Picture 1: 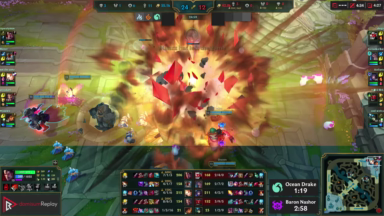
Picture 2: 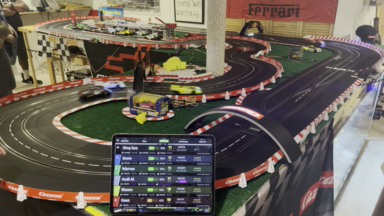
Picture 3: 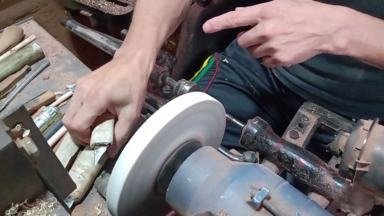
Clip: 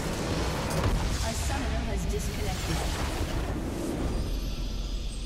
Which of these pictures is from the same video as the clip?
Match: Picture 1